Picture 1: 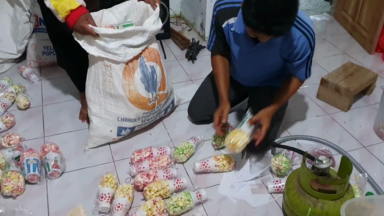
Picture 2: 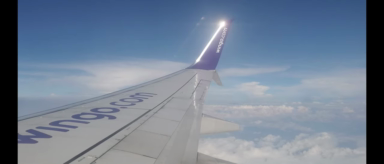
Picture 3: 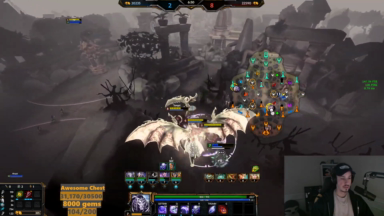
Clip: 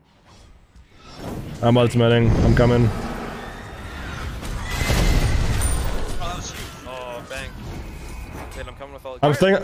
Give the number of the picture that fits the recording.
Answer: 3